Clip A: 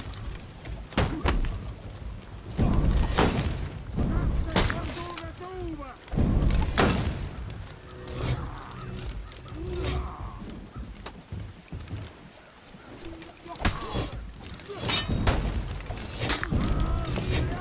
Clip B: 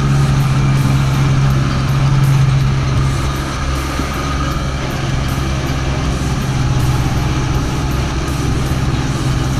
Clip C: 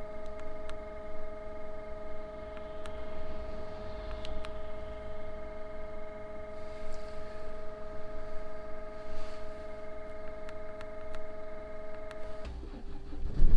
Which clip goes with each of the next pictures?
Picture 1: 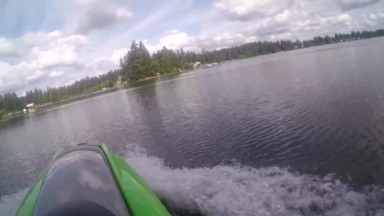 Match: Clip B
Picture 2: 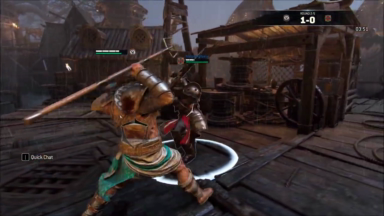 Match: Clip A